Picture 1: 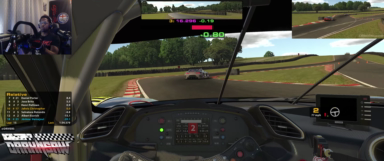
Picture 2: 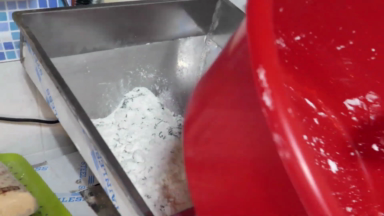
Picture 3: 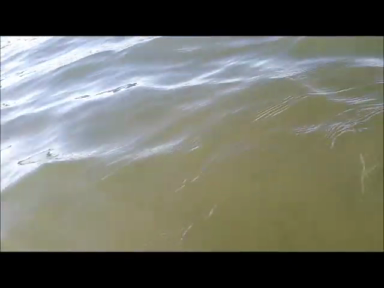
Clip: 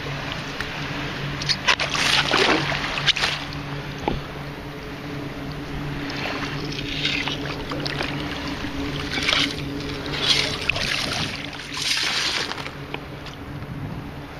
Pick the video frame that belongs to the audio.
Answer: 3